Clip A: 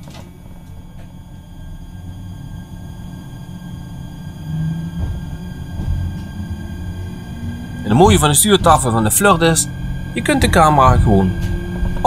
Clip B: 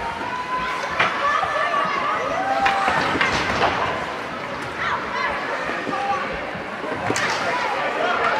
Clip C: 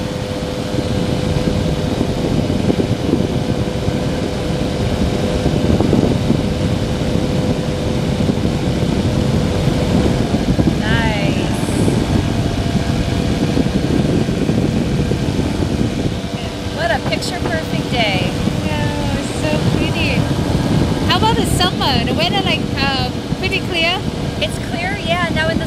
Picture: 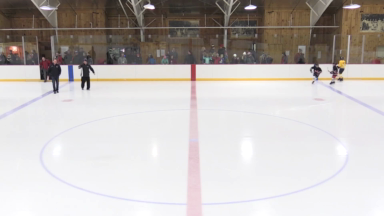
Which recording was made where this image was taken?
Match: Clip B